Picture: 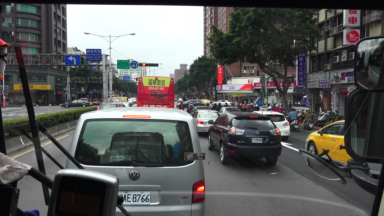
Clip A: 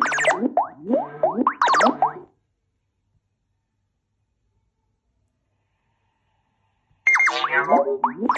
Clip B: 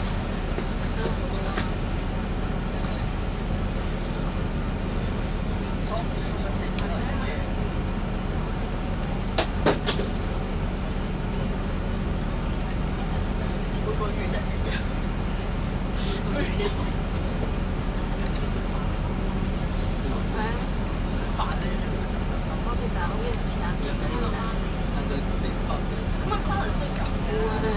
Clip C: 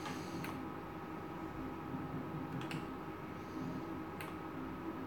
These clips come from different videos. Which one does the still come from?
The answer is B